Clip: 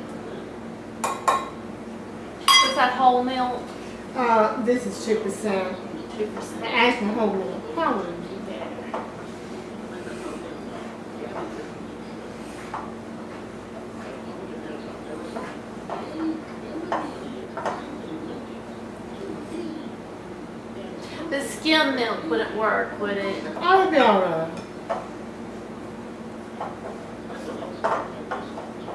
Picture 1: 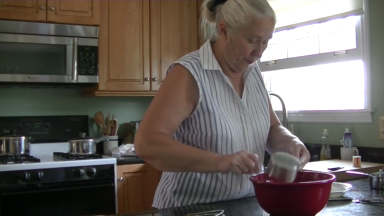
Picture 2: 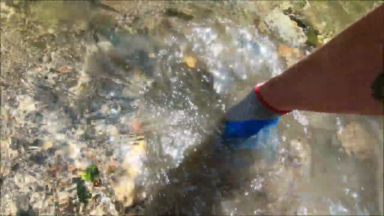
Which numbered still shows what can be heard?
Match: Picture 1